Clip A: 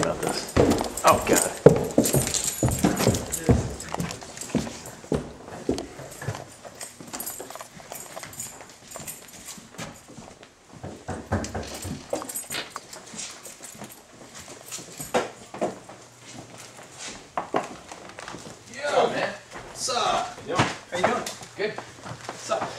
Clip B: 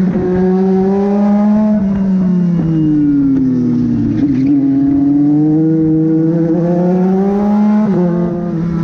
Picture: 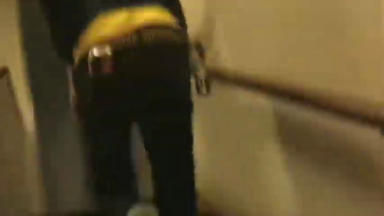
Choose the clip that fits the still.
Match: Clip A